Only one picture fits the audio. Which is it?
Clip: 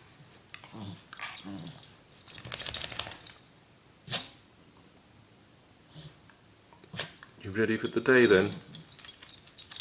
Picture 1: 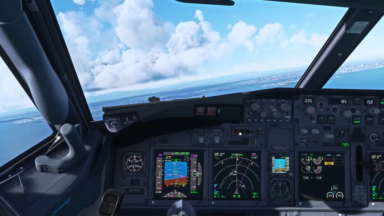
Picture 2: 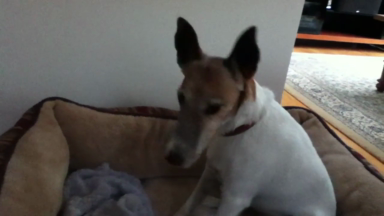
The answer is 2